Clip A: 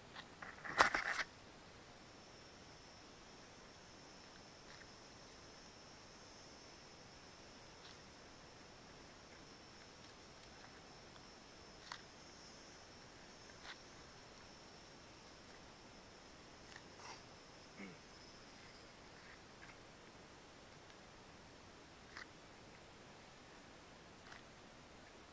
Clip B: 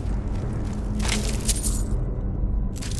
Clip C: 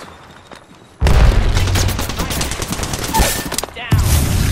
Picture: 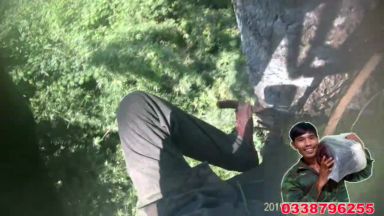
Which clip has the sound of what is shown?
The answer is A